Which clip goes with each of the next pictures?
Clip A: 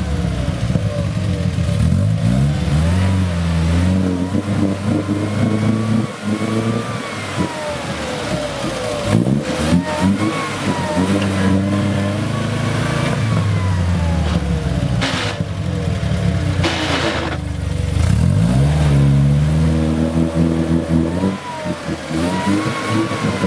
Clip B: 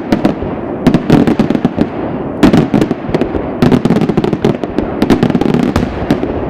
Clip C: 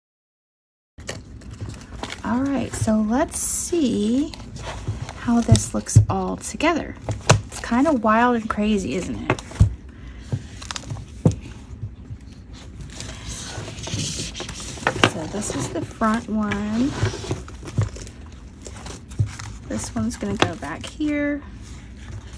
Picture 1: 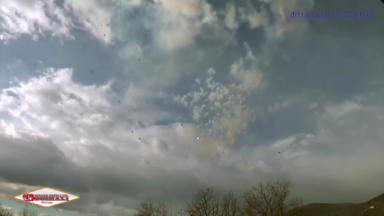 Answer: B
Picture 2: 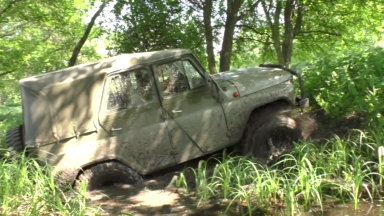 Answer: A